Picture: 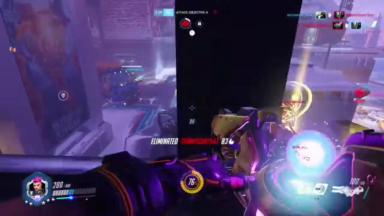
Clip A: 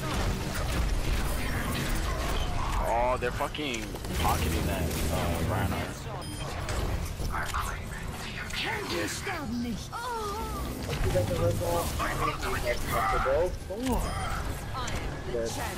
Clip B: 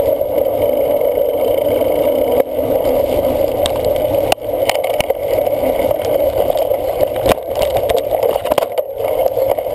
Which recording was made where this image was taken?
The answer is A